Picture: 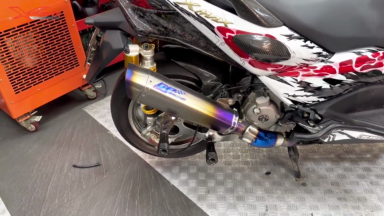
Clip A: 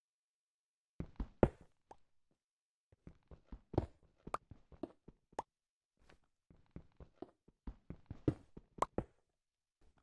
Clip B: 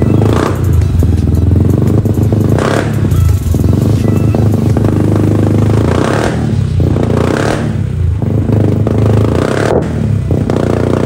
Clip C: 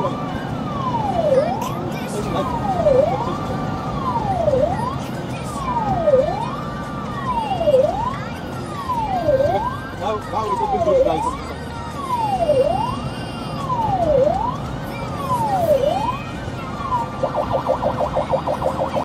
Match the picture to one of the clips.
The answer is B